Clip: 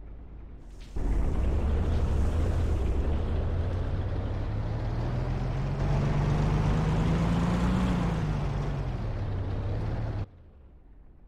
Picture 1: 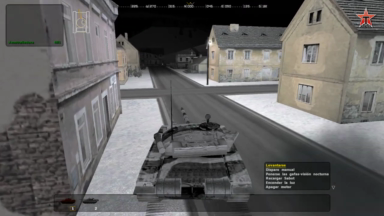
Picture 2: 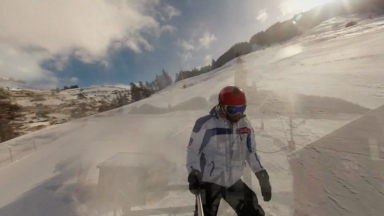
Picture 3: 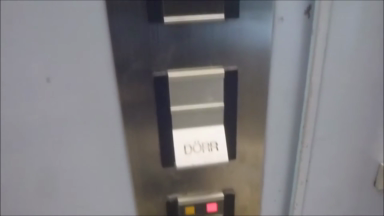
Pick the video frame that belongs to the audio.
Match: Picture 1